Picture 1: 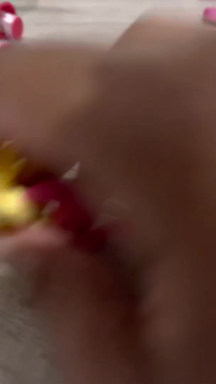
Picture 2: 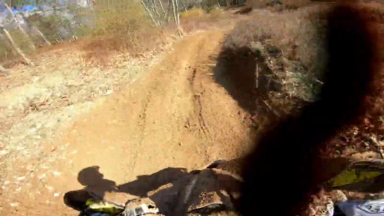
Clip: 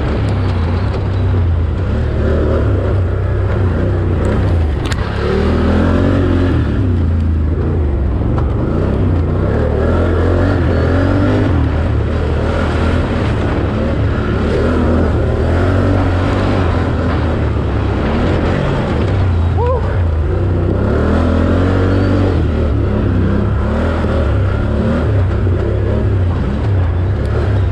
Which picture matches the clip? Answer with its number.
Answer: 2